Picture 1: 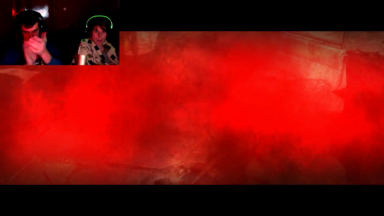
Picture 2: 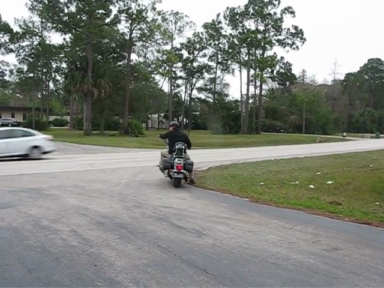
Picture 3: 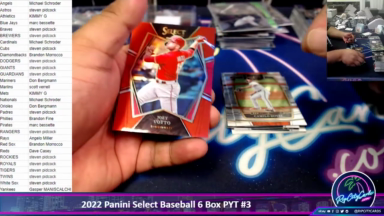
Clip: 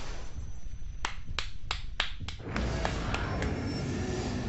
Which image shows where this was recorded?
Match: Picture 1